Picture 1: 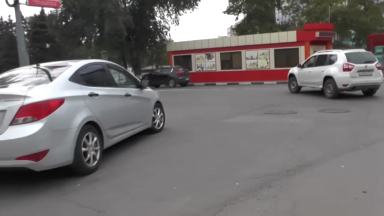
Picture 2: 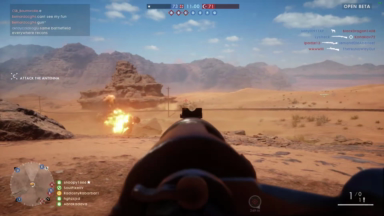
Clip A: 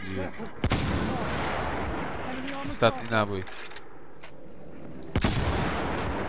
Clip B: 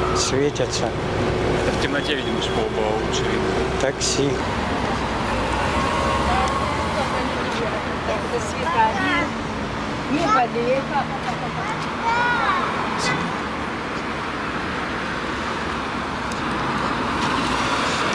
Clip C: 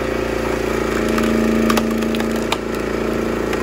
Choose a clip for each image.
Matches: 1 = B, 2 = A